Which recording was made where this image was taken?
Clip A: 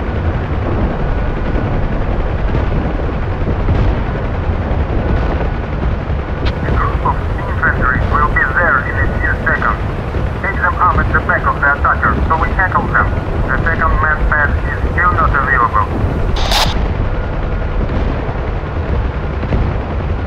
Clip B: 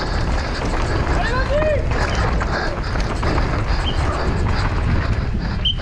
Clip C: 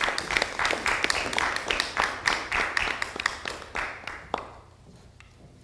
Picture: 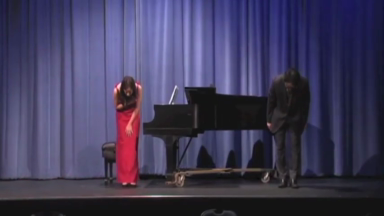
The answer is C